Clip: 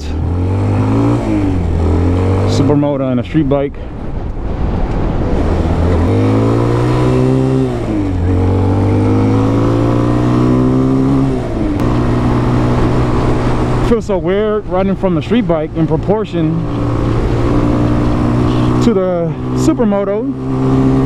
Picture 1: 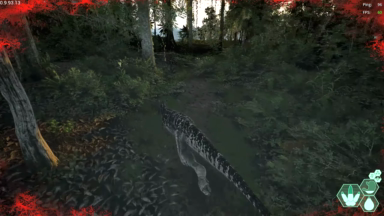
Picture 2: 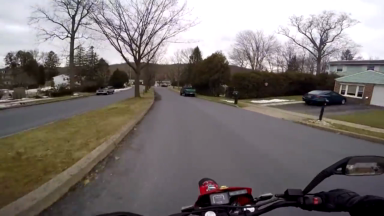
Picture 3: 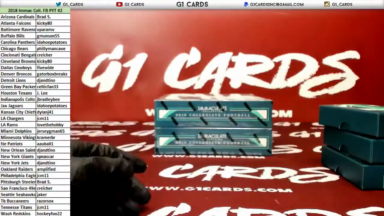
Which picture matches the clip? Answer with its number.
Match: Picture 2